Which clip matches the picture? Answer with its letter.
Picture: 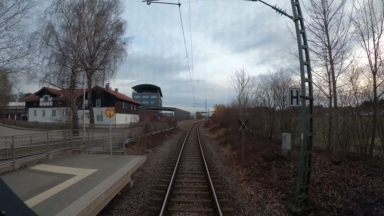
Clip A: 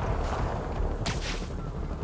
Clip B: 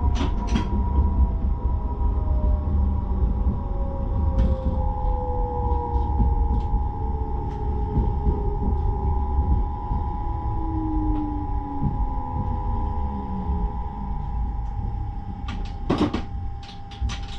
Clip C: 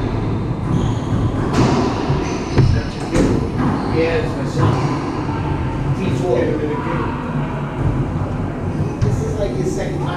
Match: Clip B